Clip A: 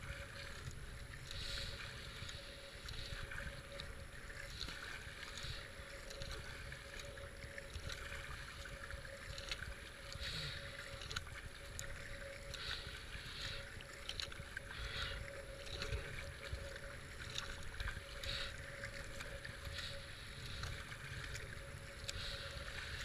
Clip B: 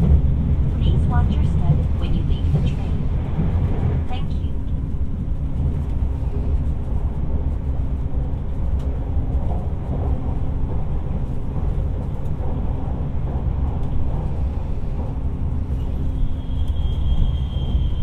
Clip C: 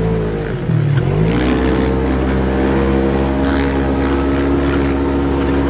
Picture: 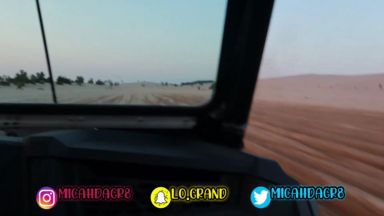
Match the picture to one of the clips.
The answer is C